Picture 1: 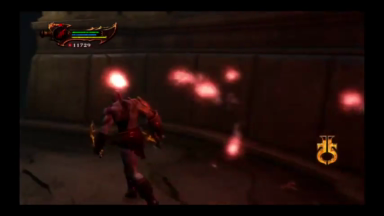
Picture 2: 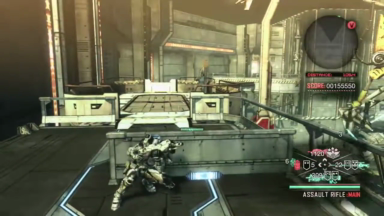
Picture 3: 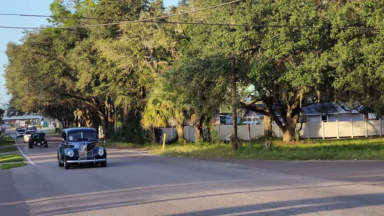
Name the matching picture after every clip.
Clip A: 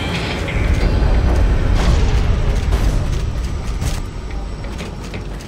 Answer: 2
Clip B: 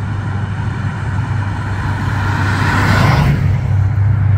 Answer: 3